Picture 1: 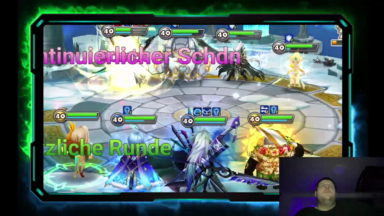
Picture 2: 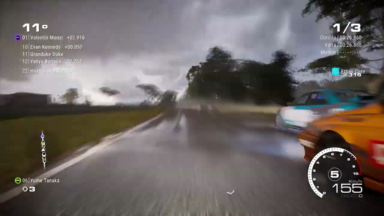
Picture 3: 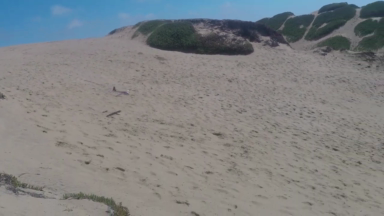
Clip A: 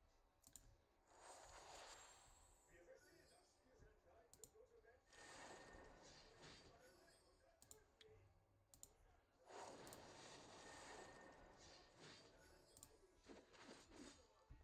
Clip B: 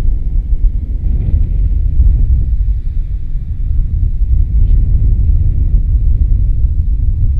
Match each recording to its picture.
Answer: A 1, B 3